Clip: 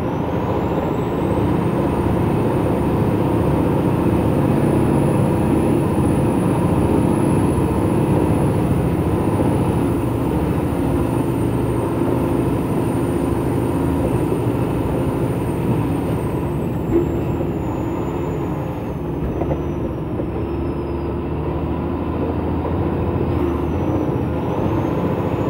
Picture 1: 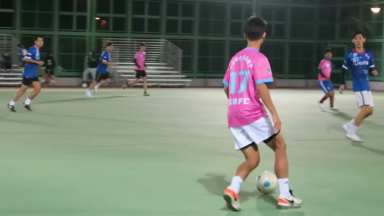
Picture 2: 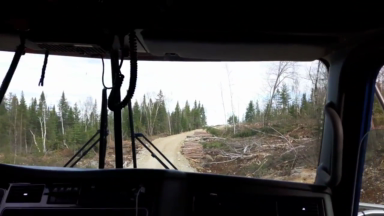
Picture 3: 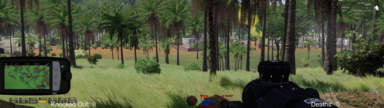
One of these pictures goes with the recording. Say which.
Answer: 2